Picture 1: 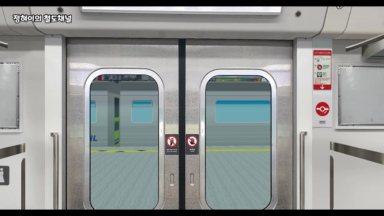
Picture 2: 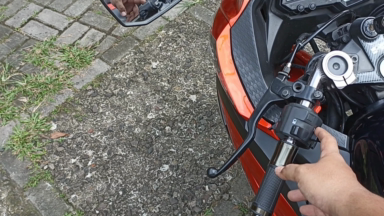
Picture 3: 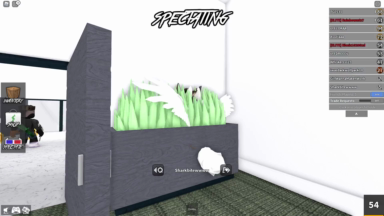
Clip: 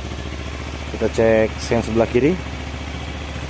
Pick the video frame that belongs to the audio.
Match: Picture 2